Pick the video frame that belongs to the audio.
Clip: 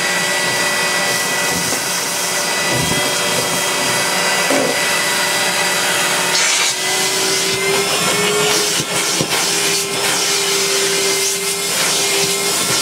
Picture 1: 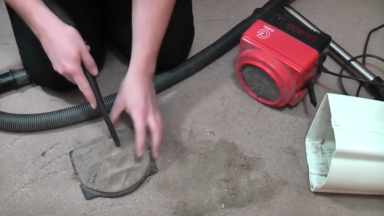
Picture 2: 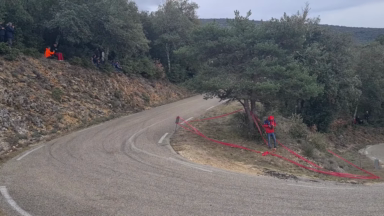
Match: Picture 1